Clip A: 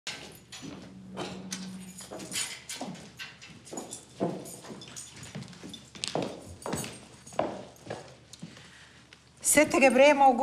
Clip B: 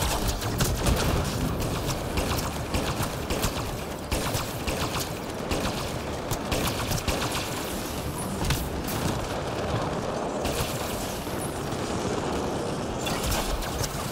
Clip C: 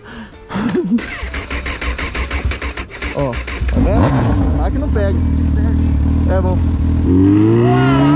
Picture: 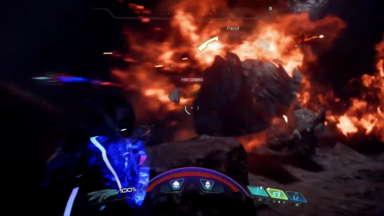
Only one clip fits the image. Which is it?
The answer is B